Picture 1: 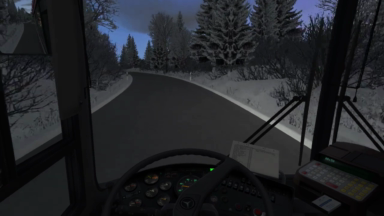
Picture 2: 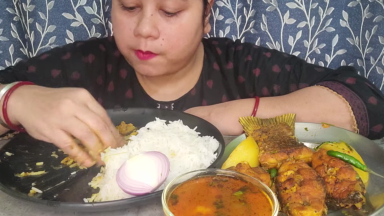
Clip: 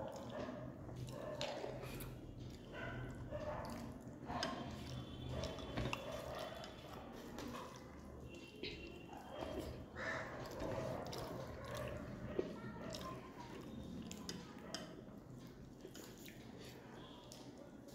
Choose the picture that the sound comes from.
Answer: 2